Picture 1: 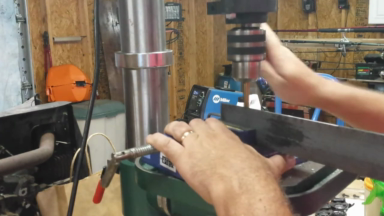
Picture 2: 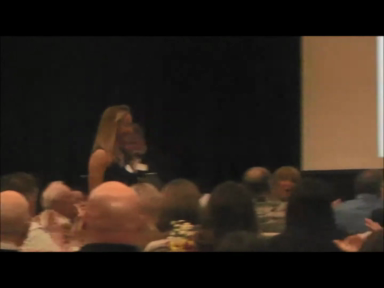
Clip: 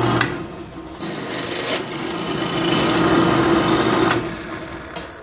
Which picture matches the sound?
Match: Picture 1